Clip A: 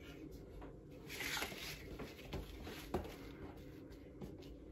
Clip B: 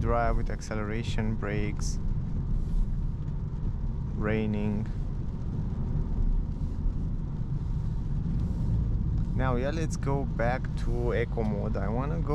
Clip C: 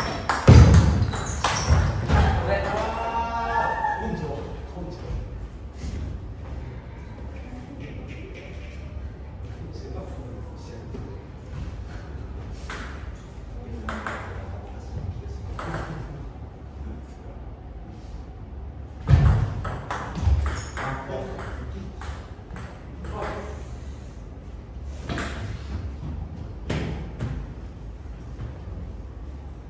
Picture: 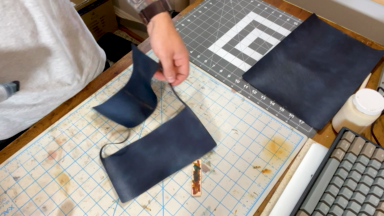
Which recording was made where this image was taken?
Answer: A